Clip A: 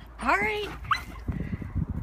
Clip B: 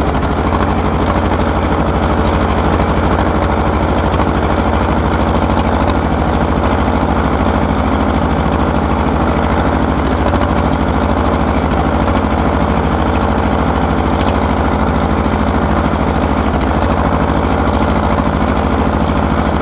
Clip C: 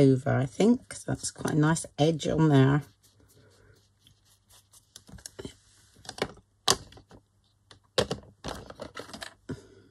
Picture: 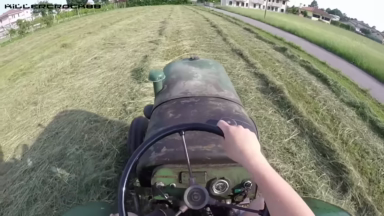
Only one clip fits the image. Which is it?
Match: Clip B